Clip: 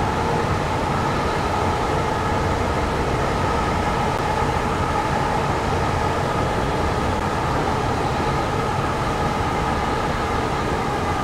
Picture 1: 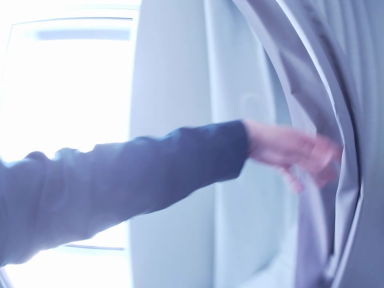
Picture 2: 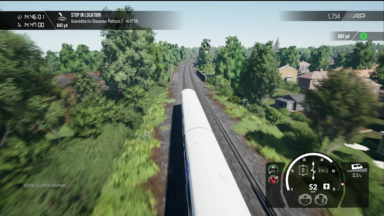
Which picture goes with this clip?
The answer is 2